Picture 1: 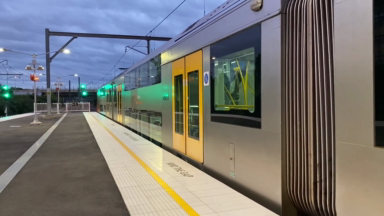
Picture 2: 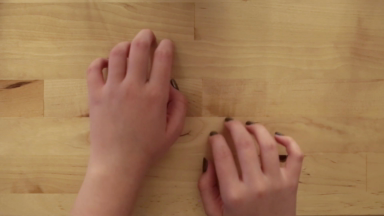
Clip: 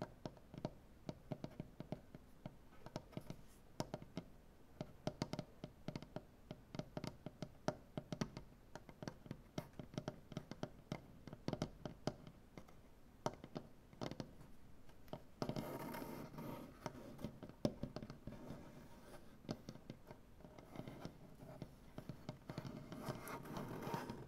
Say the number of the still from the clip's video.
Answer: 2